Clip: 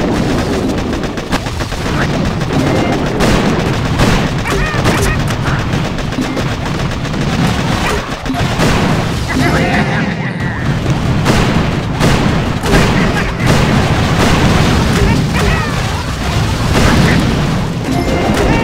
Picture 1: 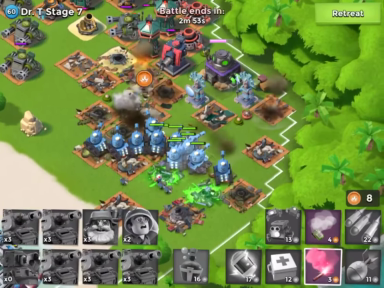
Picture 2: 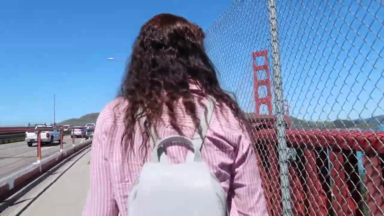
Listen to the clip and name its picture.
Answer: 1